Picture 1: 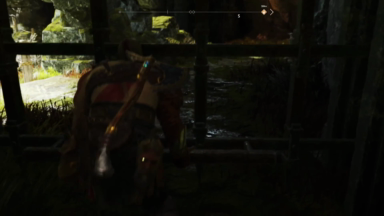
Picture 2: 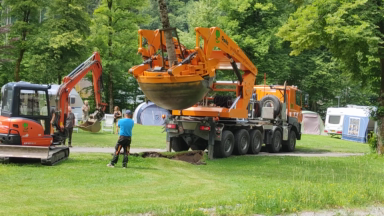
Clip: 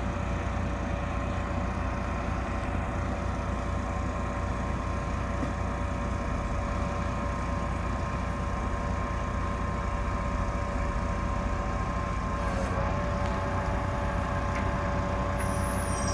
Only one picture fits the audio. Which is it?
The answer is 2